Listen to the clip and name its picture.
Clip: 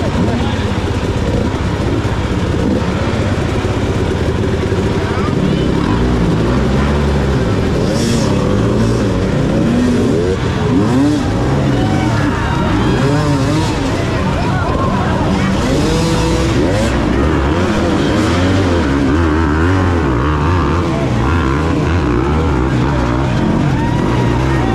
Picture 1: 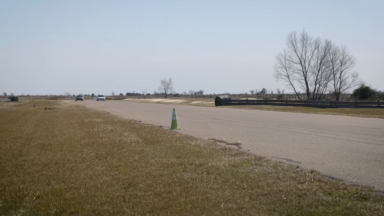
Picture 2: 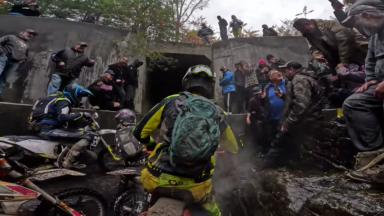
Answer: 2